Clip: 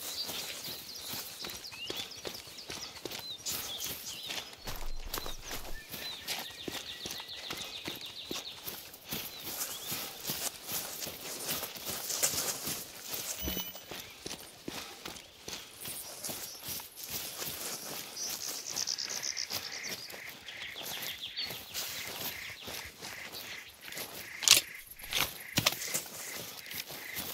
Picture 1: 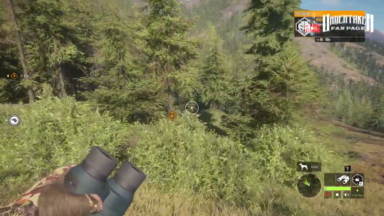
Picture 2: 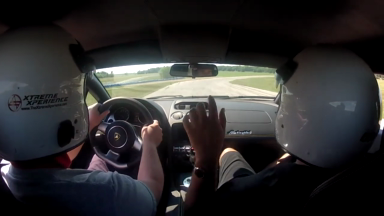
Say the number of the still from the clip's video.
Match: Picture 1